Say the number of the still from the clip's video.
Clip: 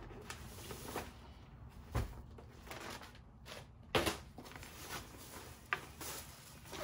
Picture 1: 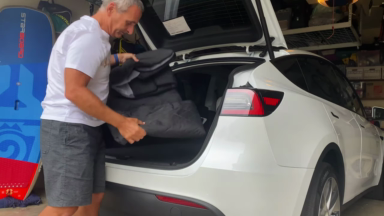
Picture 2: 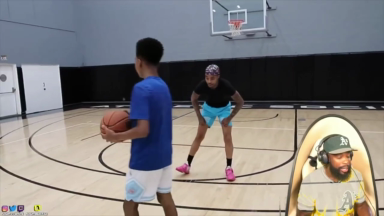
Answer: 1